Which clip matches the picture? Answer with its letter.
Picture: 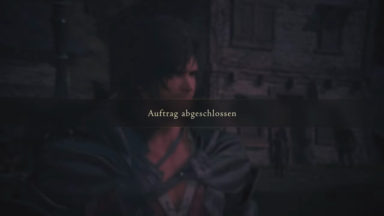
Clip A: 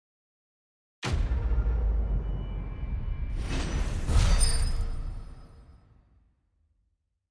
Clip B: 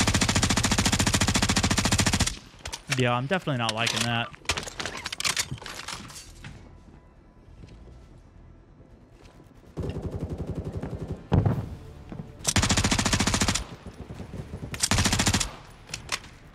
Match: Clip A